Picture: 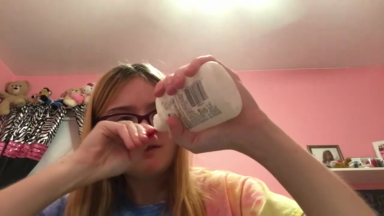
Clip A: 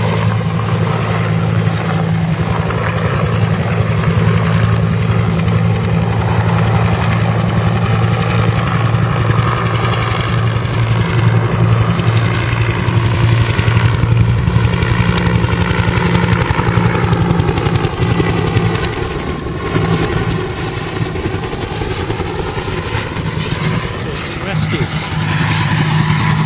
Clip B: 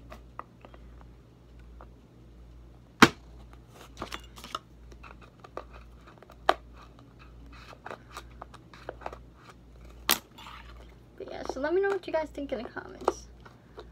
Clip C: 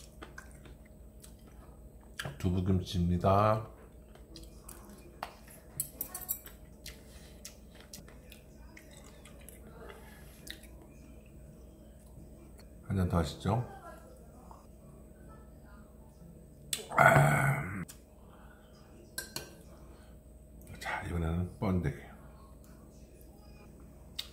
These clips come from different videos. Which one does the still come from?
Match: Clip B